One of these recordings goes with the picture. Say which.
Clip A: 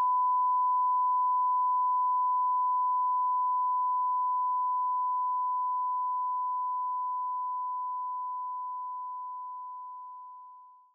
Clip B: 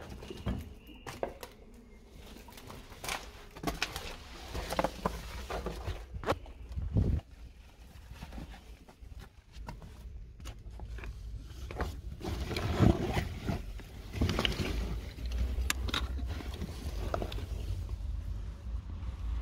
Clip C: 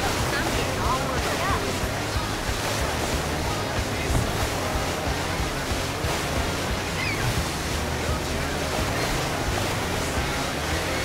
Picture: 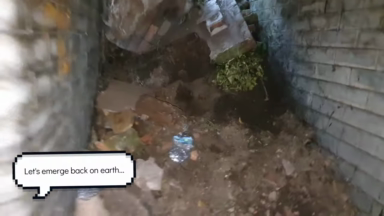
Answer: B